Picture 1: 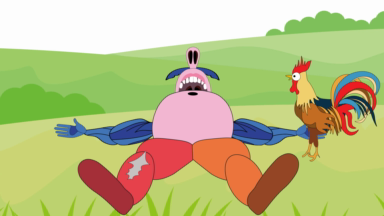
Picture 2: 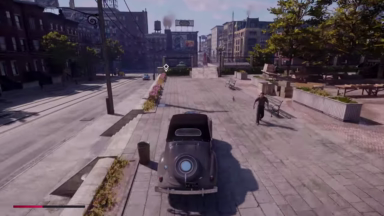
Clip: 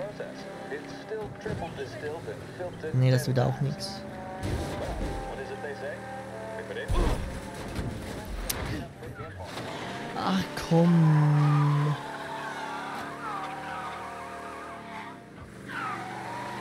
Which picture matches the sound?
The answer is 2